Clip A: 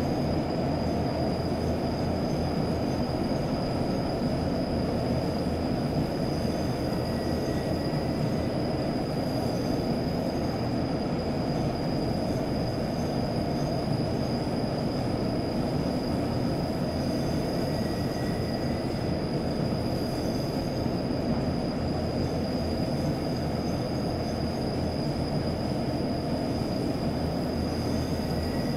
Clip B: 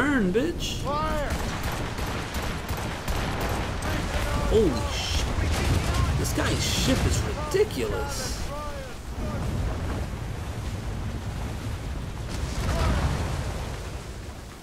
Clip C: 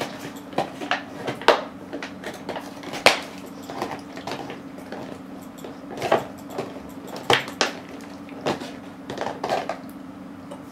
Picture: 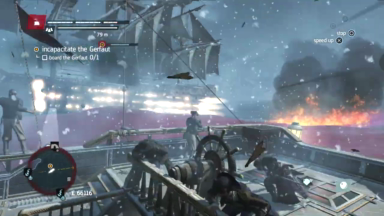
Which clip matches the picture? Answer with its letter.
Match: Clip B